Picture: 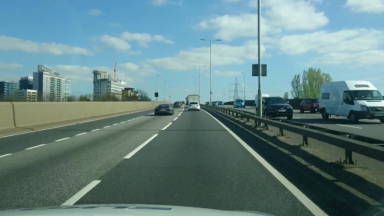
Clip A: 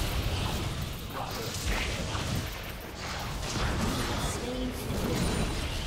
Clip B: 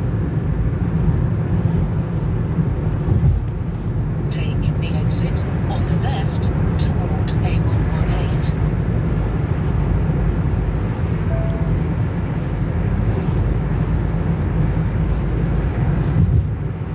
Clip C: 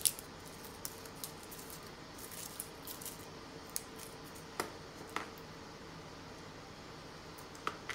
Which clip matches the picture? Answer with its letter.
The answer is B